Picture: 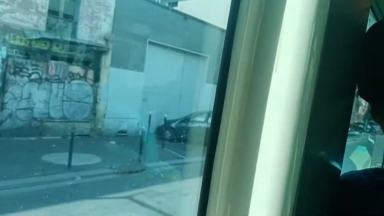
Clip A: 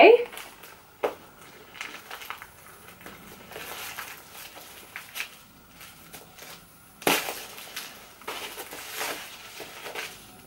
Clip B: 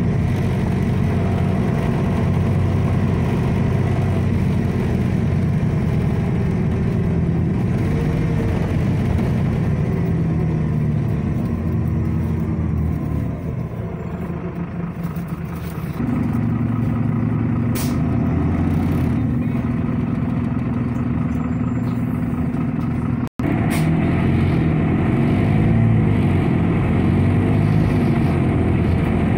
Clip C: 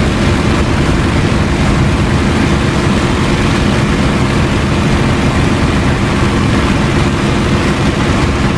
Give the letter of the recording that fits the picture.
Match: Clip B